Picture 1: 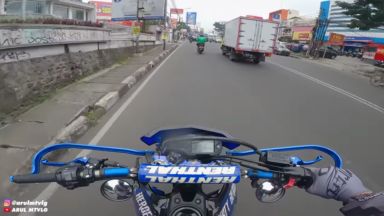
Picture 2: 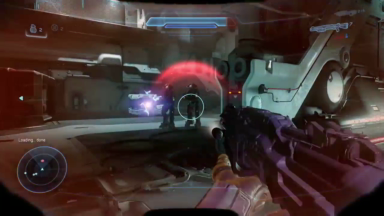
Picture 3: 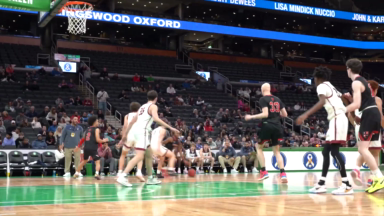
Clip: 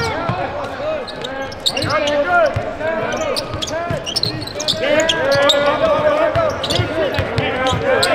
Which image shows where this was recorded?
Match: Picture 3